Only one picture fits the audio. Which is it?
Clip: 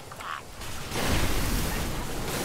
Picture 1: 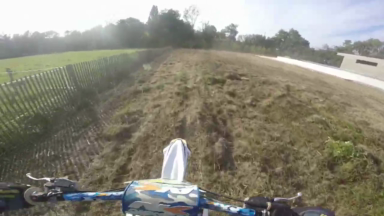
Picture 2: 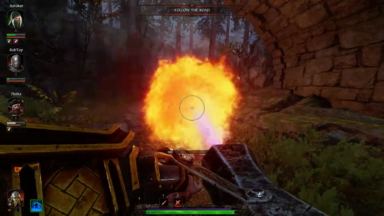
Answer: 2